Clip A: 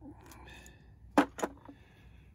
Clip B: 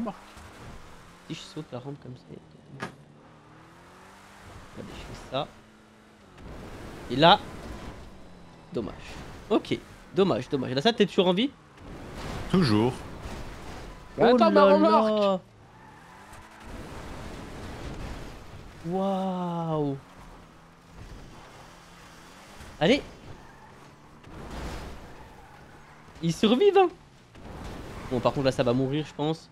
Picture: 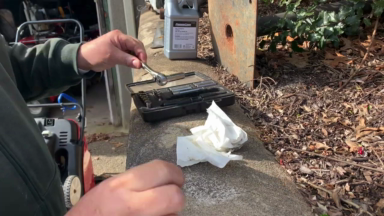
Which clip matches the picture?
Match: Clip A